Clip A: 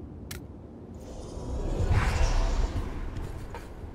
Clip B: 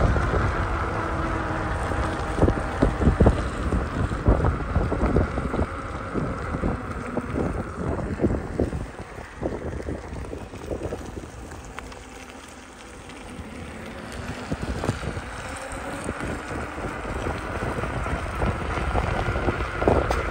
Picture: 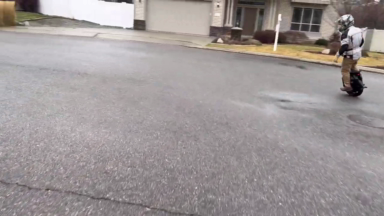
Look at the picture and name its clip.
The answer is B